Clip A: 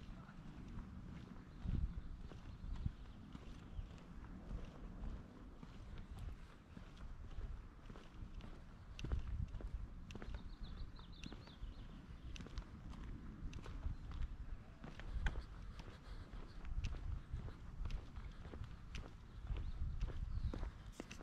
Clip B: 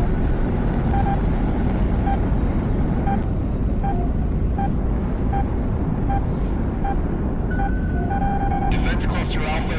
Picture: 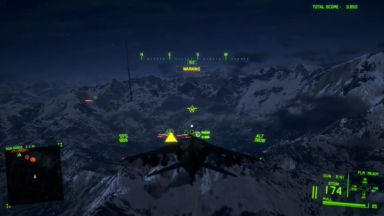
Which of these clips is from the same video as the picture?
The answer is B